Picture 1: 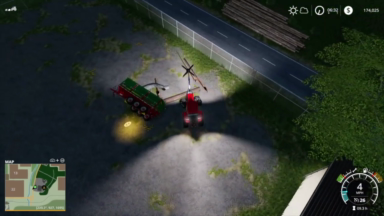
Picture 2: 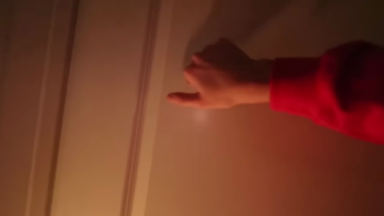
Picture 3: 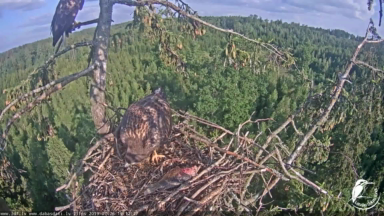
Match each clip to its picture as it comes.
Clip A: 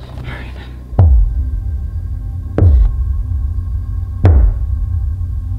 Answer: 2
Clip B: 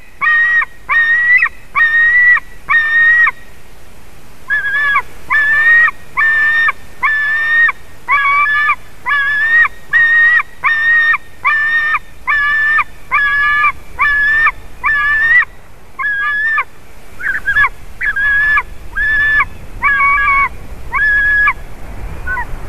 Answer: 3